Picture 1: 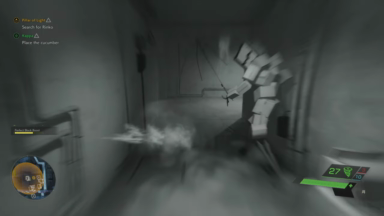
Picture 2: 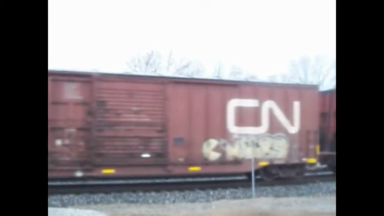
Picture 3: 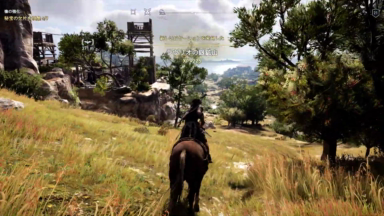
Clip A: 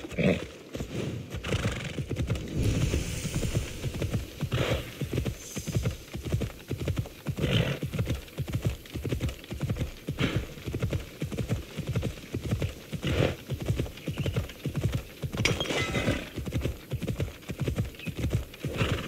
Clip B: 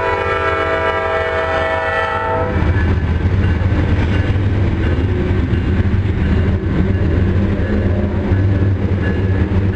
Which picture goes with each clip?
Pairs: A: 3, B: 2